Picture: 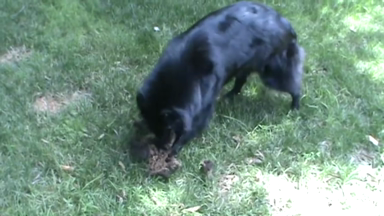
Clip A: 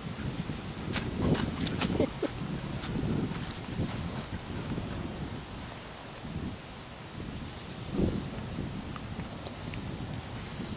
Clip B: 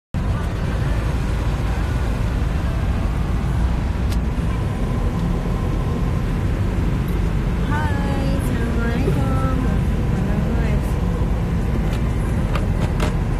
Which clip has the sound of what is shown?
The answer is A